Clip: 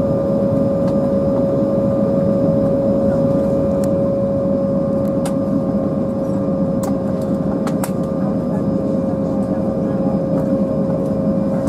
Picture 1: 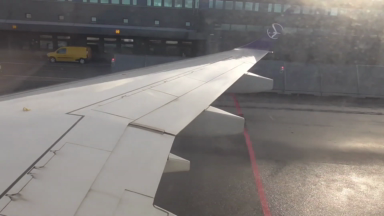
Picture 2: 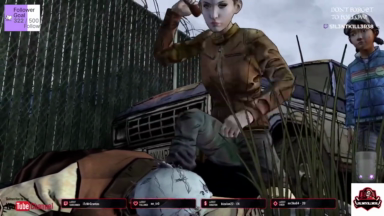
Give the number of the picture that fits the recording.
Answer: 1